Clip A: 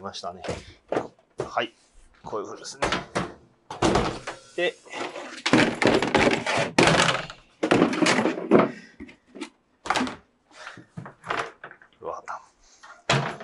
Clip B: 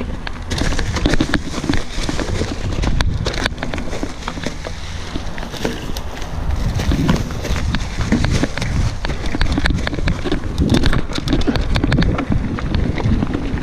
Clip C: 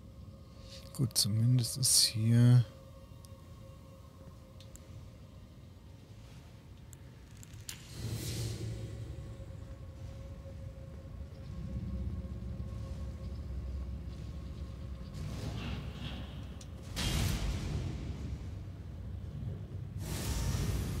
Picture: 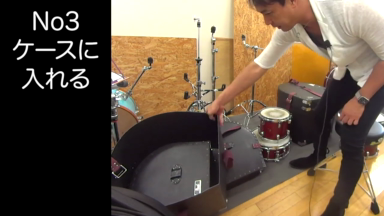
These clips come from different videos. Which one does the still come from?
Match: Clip A